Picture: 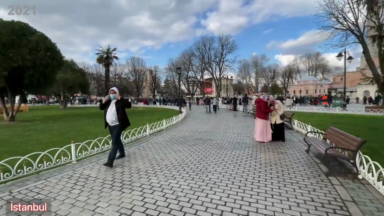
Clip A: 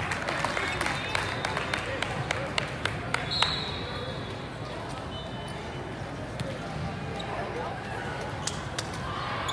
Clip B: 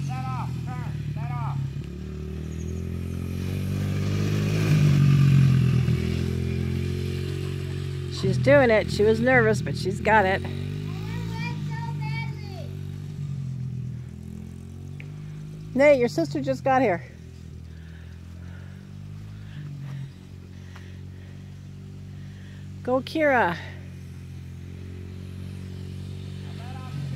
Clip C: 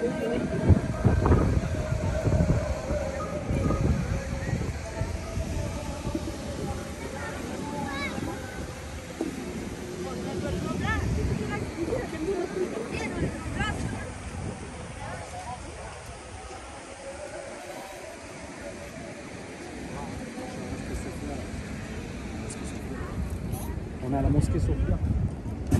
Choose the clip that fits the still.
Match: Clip C